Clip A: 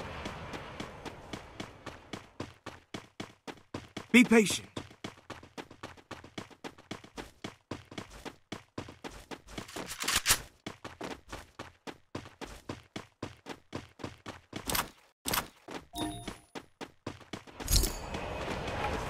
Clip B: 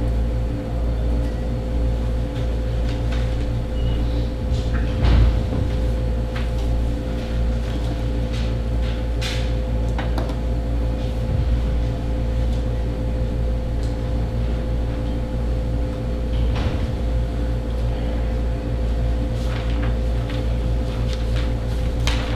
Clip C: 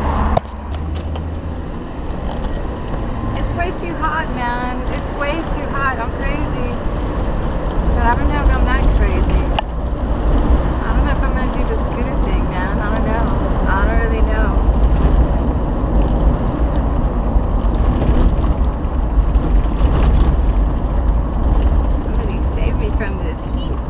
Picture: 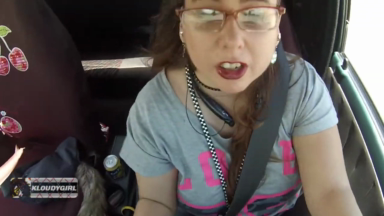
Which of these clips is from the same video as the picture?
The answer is C